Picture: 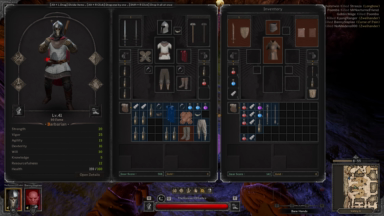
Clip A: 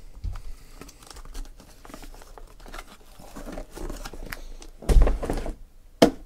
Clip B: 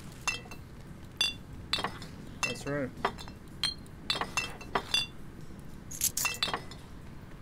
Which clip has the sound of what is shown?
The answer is B